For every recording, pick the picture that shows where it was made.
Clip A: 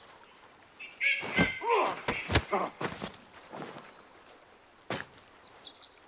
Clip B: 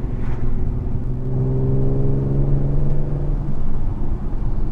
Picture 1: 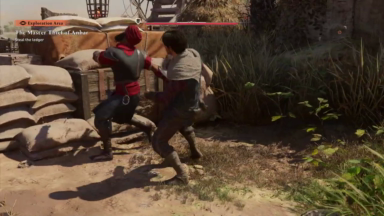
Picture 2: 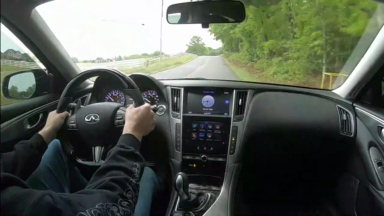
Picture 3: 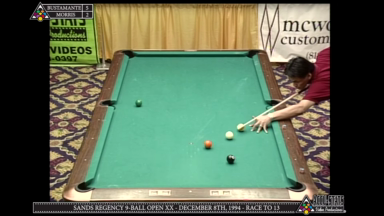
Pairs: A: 1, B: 2